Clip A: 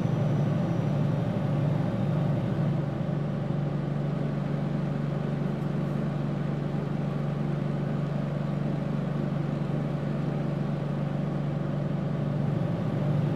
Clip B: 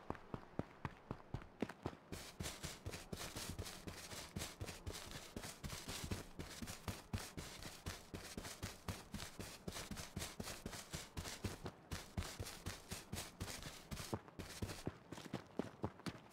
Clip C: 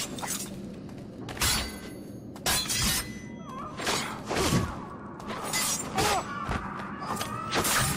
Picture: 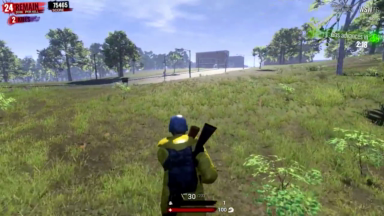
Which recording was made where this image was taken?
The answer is B